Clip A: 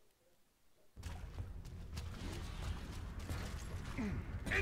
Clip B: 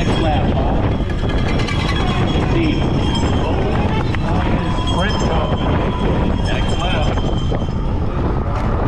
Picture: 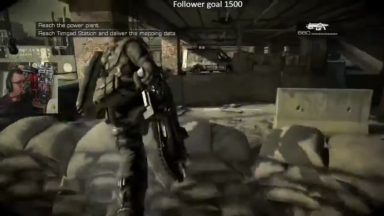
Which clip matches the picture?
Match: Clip A